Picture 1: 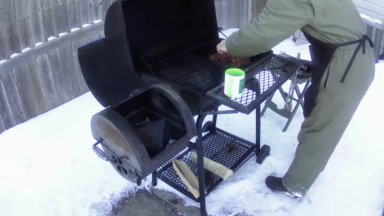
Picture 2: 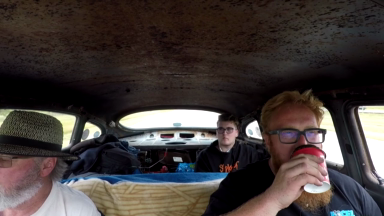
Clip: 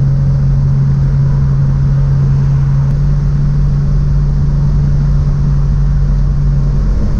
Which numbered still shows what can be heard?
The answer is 2